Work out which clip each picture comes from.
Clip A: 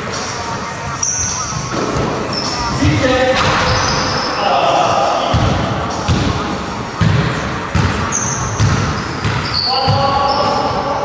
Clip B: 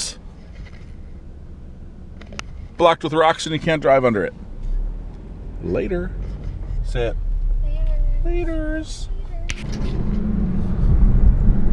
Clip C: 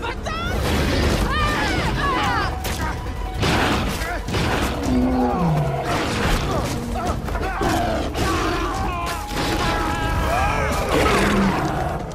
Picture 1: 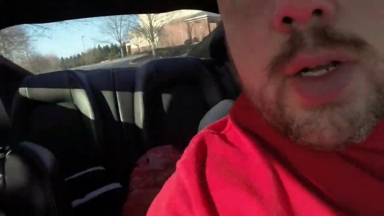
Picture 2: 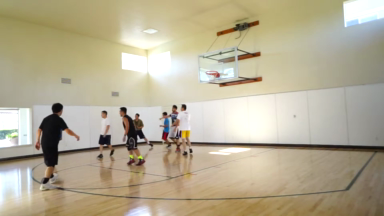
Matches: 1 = B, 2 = A